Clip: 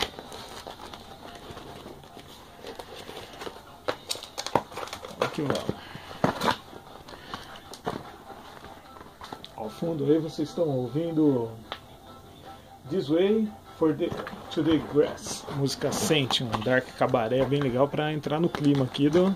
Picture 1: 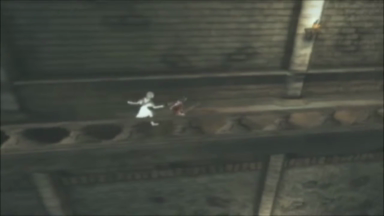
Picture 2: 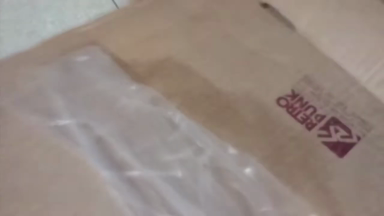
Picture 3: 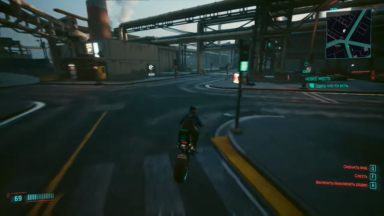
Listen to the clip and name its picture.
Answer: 2